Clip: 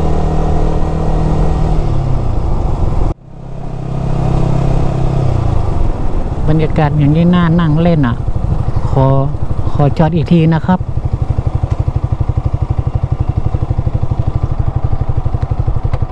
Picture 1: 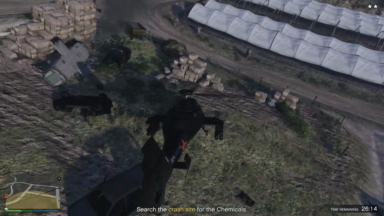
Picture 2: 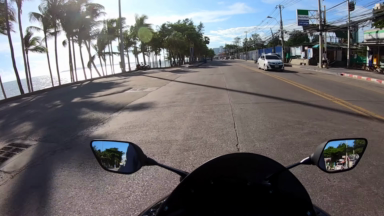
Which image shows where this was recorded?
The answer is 2